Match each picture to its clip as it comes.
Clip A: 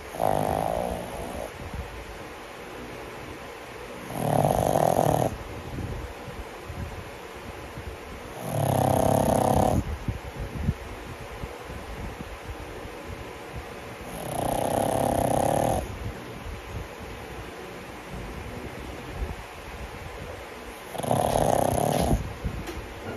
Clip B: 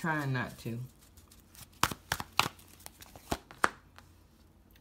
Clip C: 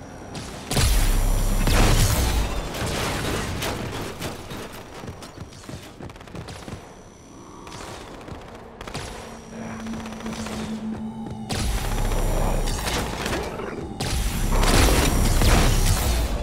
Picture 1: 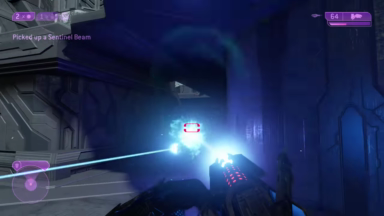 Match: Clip C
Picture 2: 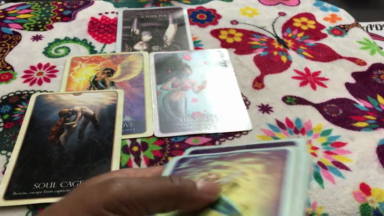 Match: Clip B